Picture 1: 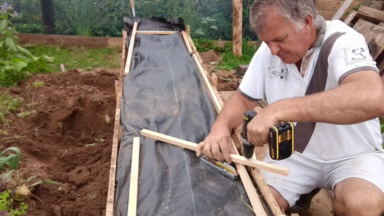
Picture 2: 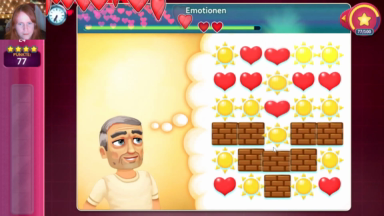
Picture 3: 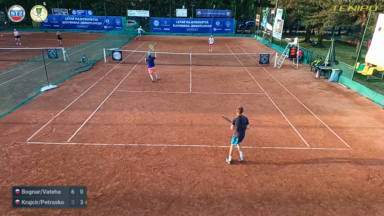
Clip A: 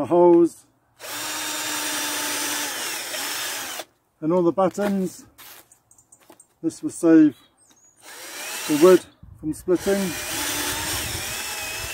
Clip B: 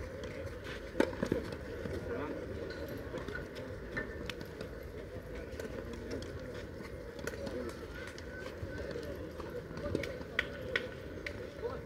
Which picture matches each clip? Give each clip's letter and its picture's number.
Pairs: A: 1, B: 3